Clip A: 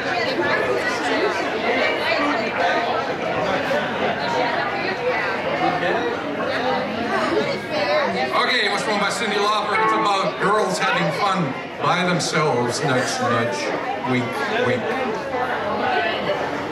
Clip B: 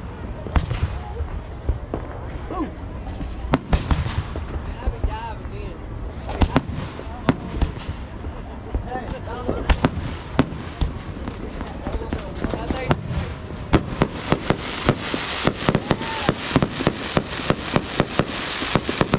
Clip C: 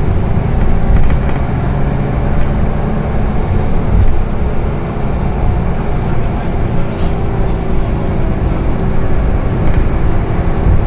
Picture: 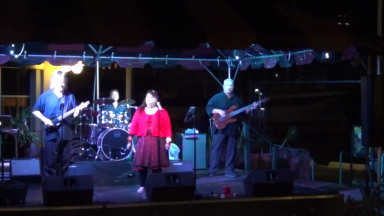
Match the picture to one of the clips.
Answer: A